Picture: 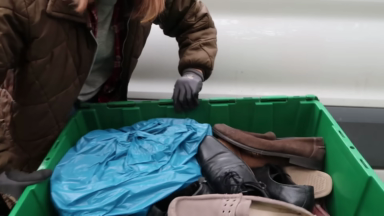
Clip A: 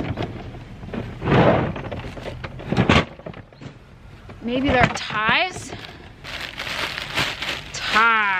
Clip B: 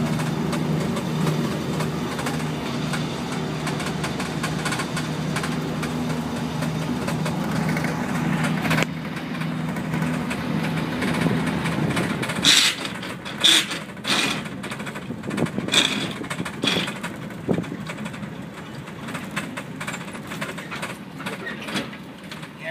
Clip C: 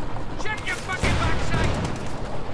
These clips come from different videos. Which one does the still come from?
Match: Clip A